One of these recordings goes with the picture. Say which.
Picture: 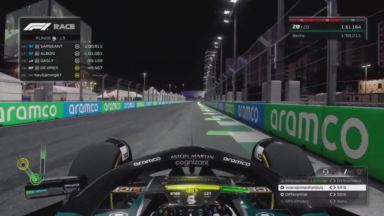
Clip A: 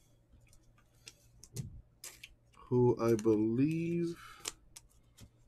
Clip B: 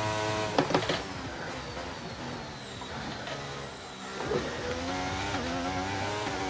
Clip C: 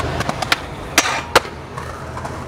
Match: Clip B